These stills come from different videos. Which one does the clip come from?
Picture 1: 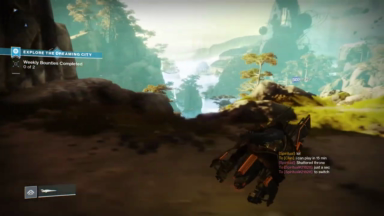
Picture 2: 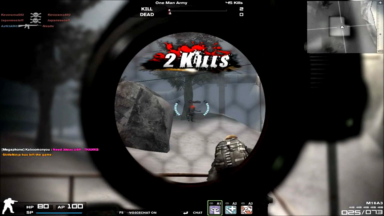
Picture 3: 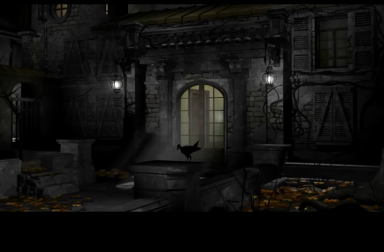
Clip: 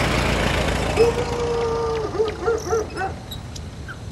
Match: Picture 3